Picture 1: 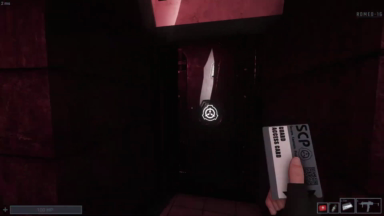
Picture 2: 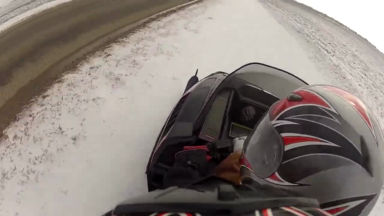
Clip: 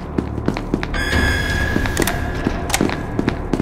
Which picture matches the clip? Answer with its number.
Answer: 1